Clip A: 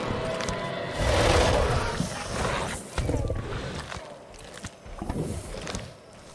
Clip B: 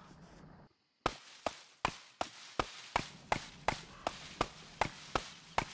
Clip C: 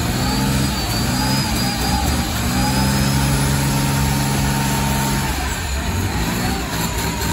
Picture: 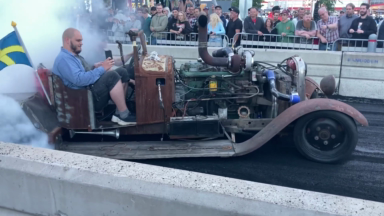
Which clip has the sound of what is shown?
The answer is C